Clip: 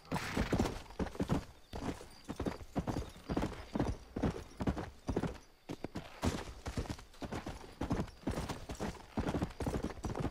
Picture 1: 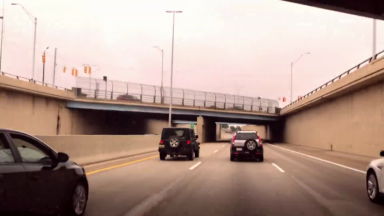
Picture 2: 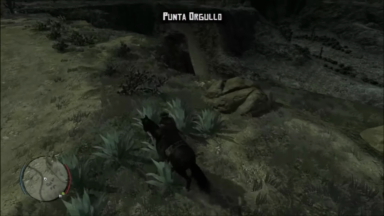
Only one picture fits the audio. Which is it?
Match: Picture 2